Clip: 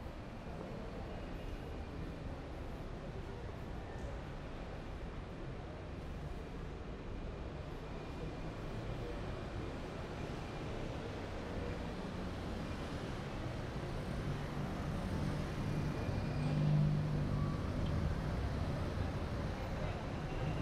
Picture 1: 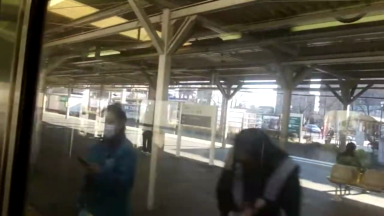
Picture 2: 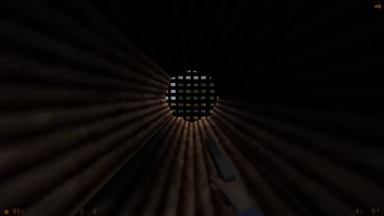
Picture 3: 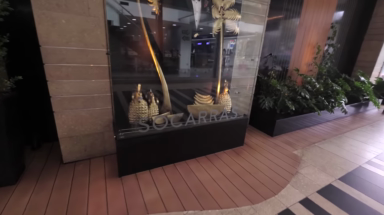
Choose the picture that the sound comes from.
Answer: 3